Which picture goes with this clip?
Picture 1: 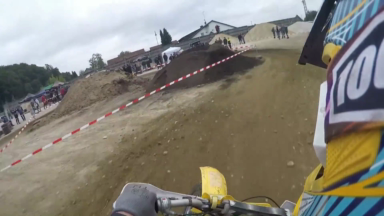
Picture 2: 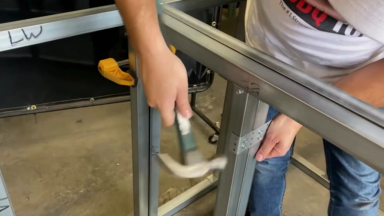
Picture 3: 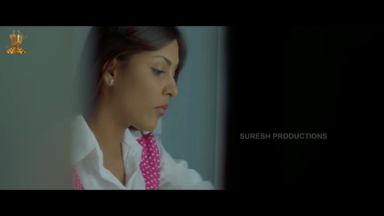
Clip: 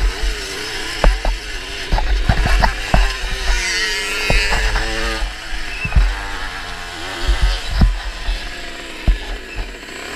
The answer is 1